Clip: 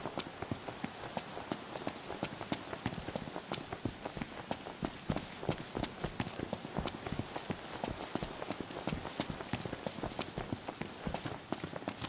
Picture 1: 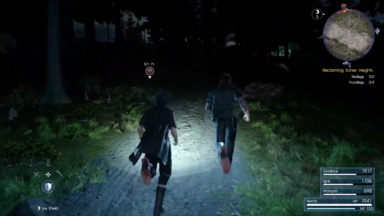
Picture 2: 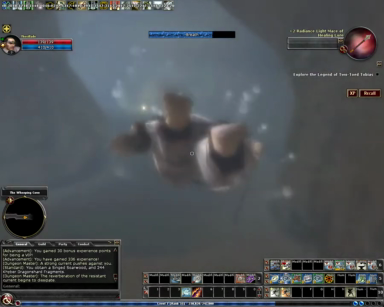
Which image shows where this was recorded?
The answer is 1